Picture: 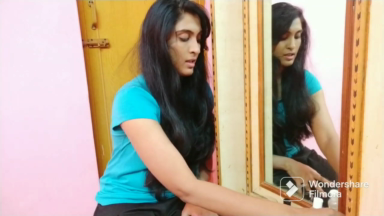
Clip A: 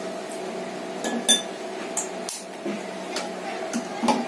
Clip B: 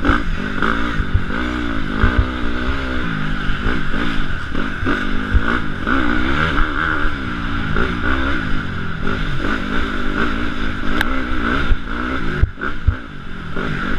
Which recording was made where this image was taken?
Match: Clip A